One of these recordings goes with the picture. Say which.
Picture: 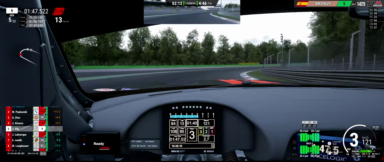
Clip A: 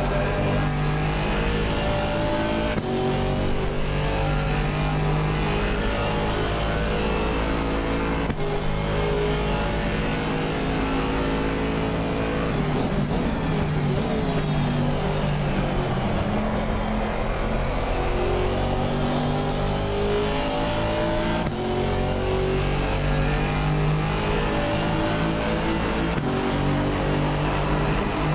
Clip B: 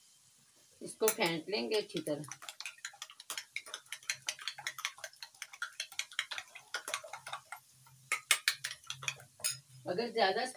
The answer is A